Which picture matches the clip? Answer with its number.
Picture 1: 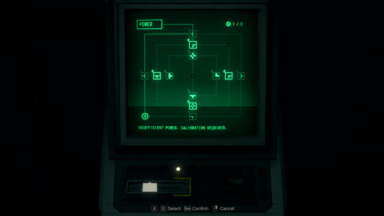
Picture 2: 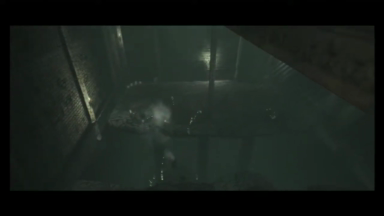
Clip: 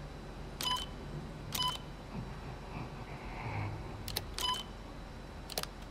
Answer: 1